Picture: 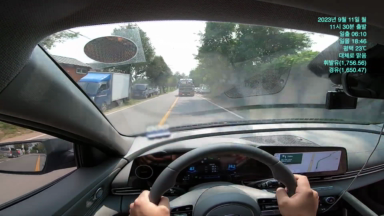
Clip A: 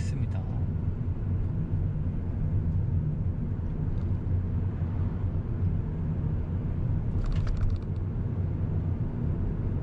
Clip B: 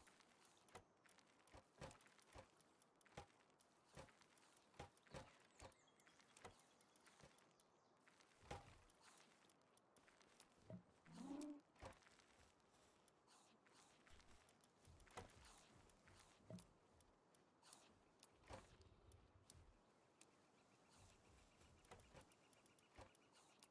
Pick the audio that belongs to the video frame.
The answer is A